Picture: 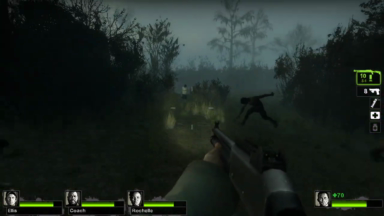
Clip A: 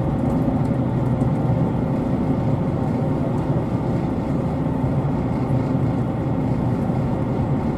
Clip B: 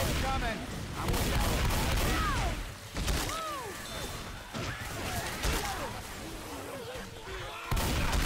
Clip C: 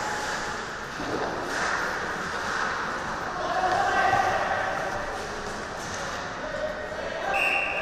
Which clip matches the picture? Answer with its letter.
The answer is B